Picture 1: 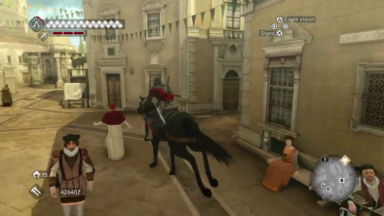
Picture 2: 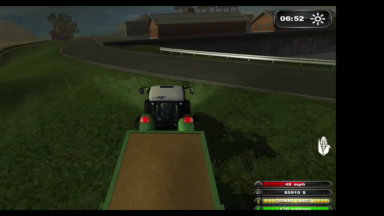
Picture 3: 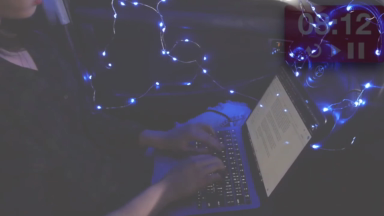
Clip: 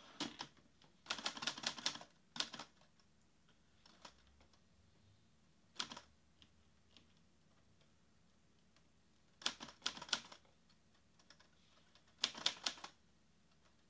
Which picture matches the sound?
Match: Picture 3